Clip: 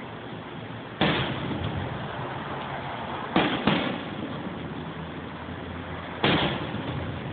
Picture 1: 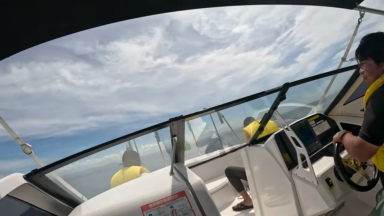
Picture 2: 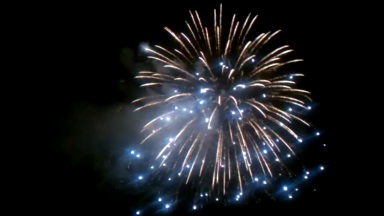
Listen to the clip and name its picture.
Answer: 2